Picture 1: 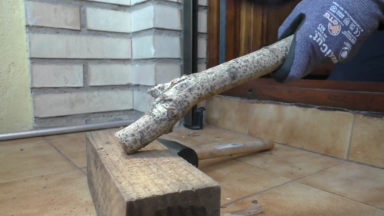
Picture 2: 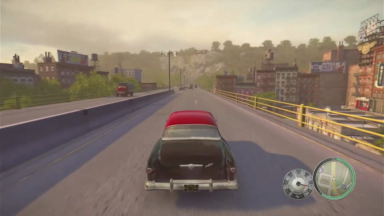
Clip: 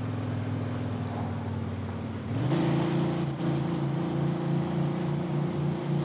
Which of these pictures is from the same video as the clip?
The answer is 2